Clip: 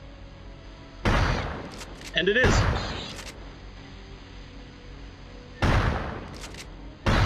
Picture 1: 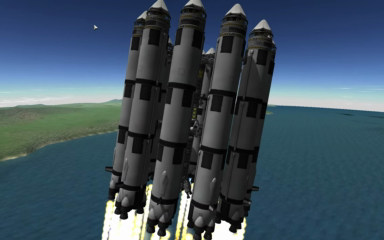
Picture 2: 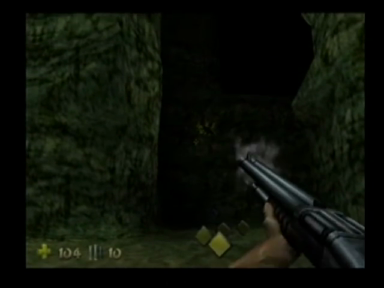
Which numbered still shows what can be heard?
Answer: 2